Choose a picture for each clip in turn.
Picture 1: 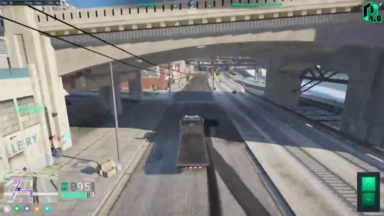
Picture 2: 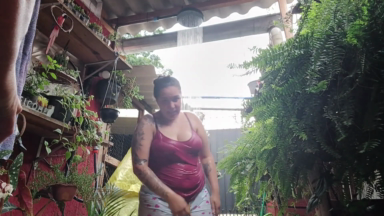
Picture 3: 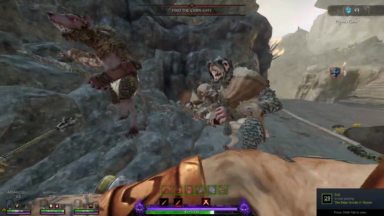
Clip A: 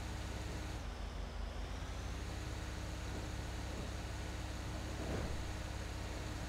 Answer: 1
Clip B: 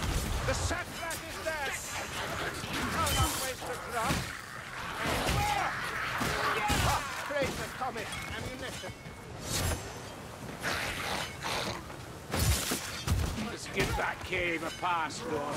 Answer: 3